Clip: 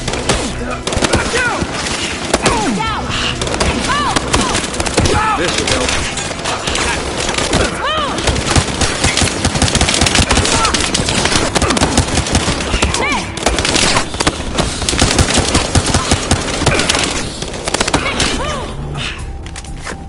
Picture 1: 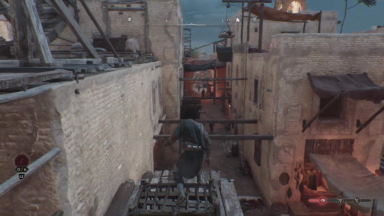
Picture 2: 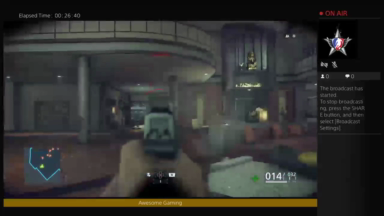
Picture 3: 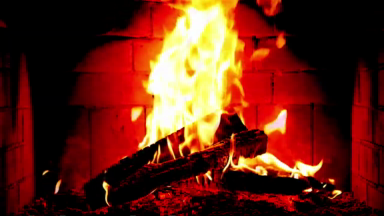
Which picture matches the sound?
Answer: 2